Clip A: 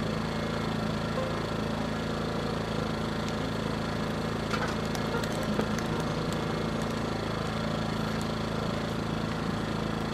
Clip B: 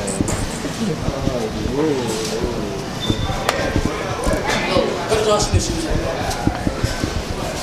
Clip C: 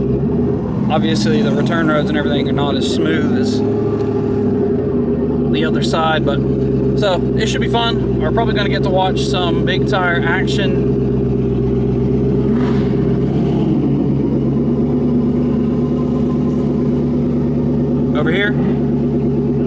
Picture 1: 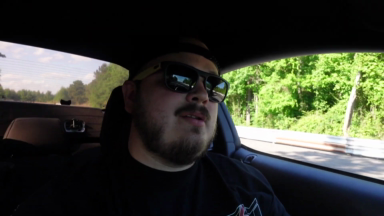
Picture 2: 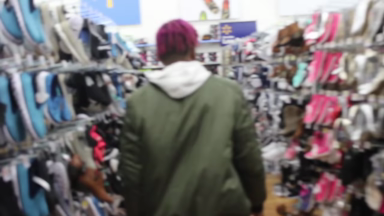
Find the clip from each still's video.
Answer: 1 C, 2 B